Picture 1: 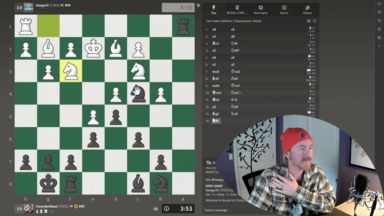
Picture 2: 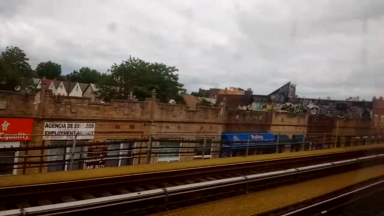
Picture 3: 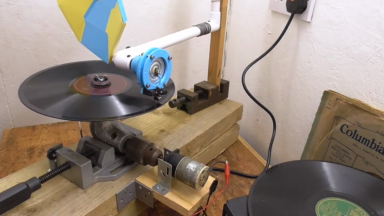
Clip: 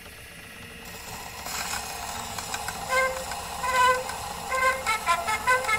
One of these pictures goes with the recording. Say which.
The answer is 3